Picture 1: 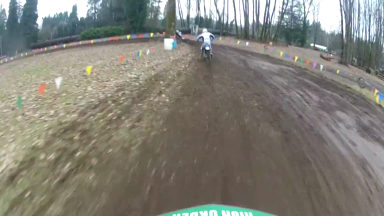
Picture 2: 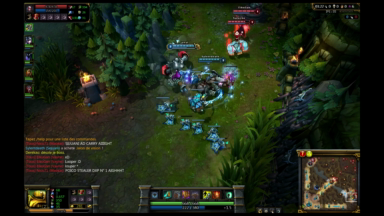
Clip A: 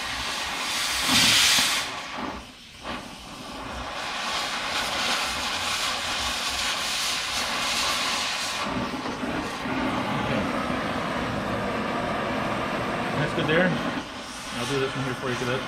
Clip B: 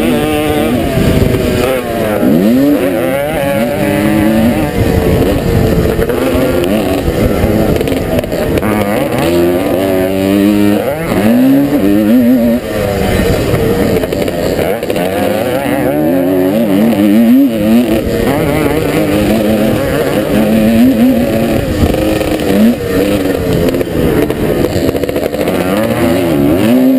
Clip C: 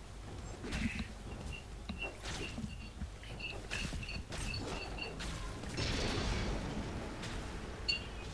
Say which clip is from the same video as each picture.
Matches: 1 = B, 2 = C